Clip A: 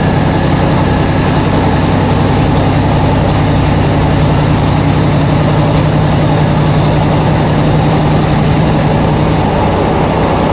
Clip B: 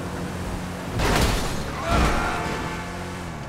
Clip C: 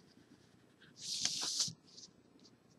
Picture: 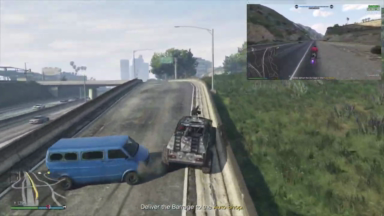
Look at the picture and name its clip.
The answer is B